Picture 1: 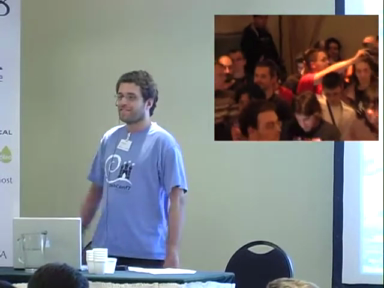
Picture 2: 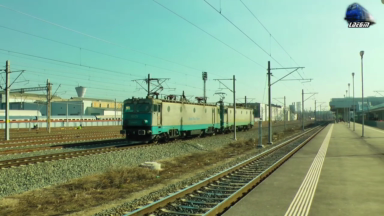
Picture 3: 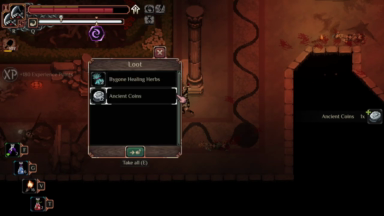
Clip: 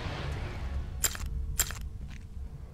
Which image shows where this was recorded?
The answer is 3